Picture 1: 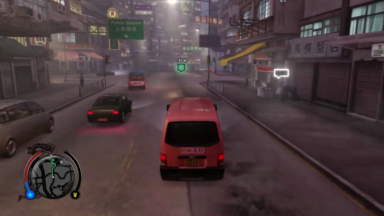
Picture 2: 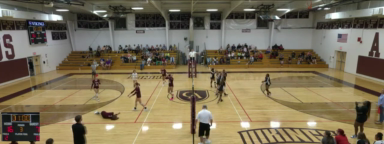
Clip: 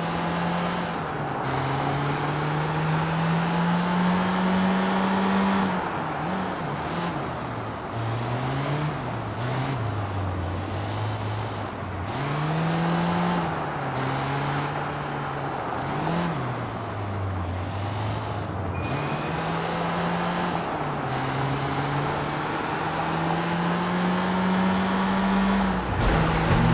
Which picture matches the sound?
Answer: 1